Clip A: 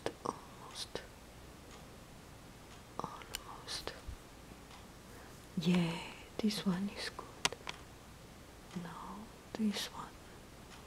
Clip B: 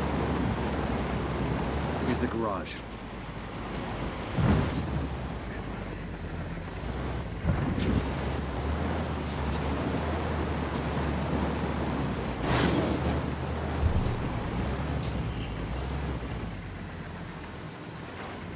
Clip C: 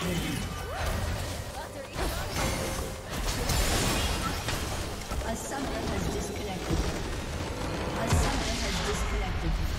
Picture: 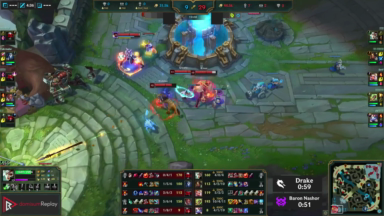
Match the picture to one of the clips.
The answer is C